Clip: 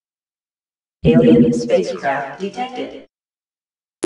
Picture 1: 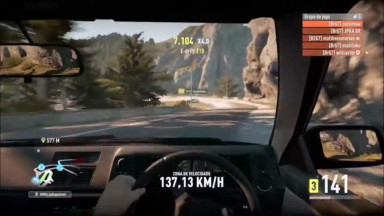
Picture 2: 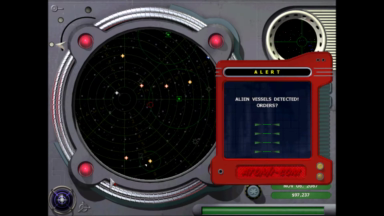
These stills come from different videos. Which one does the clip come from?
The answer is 2